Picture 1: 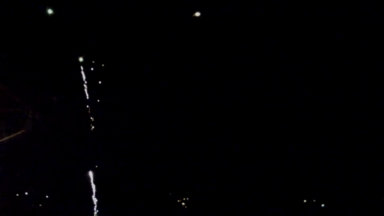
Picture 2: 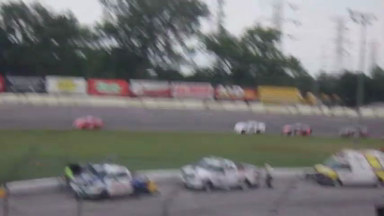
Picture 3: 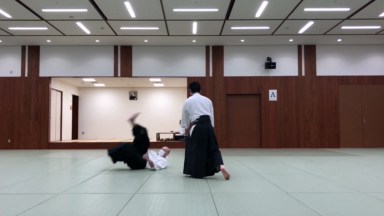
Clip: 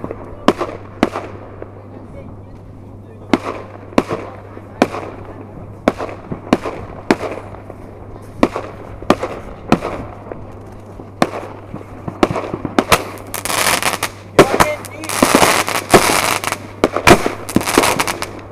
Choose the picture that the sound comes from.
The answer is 1